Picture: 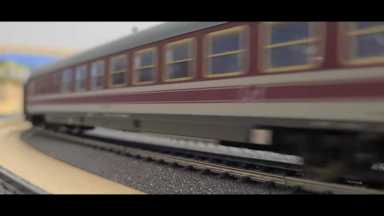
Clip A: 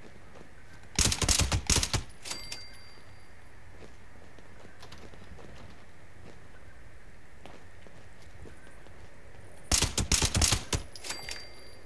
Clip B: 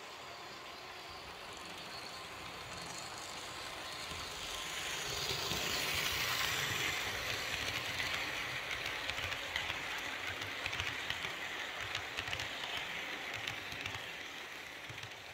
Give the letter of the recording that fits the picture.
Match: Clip B